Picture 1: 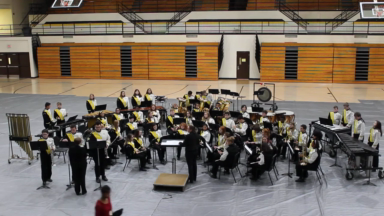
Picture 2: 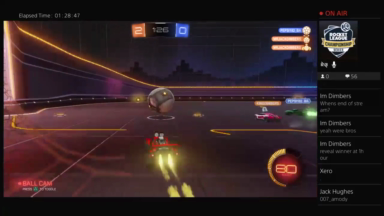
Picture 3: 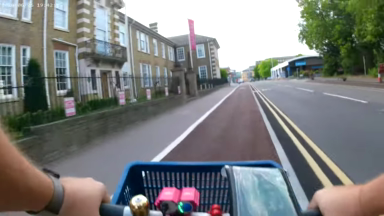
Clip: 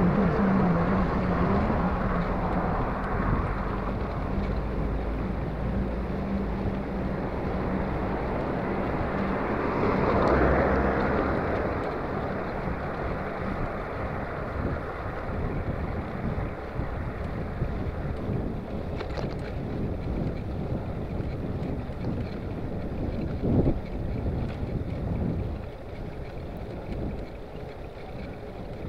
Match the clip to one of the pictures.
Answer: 3